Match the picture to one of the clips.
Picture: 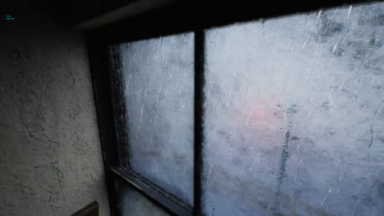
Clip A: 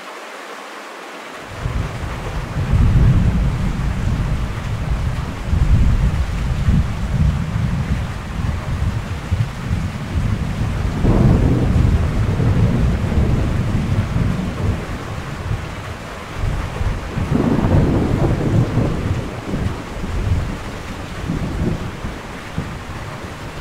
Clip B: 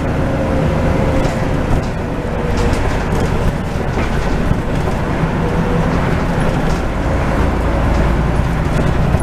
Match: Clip A